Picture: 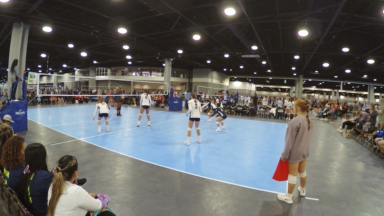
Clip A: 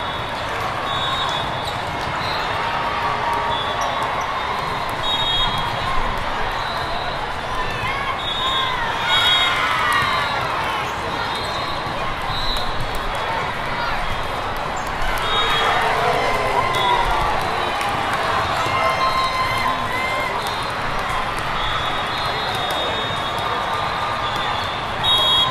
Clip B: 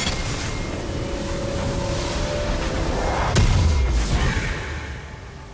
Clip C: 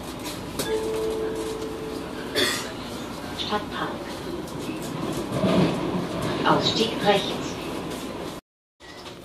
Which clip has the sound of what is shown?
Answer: A